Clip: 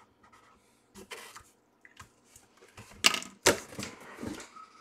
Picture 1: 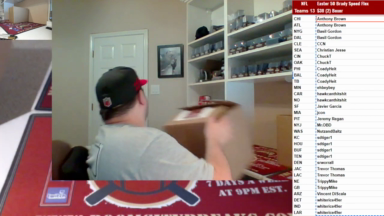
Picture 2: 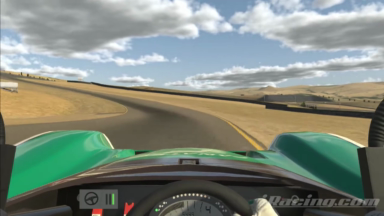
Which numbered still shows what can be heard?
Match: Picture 1